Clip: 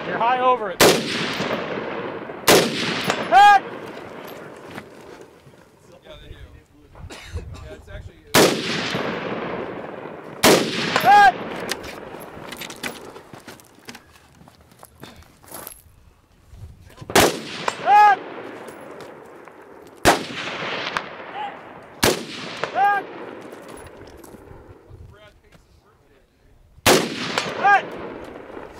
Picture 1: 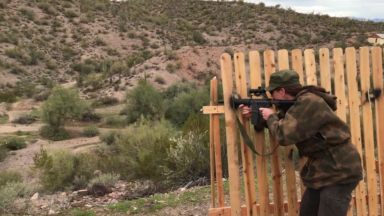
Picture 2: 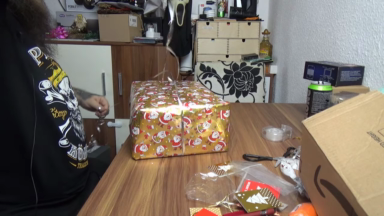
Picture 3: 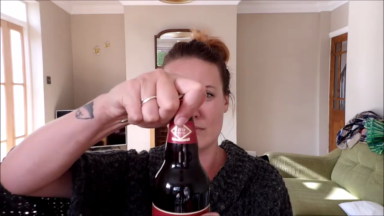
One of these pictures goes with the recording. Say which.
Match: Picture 1